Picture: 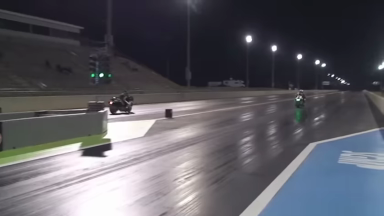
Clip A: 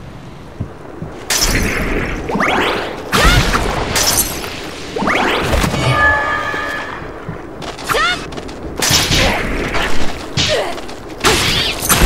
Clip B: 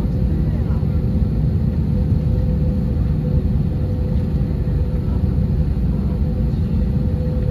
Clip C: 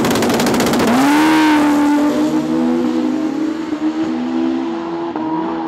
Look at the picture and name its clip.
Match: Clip C